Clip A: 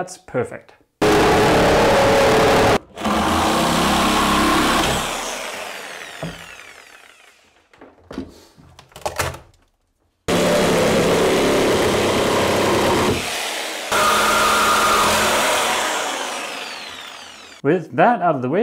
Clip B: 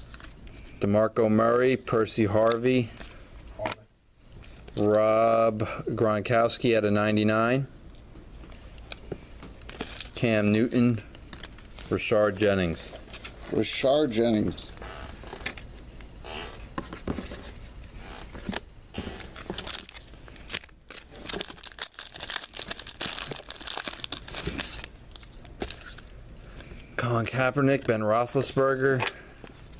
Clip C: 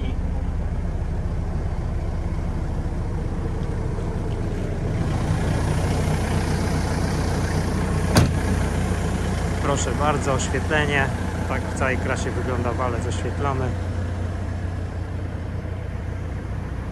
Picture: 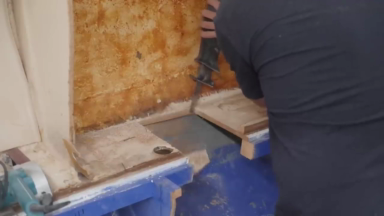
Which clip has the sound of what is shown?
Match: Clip A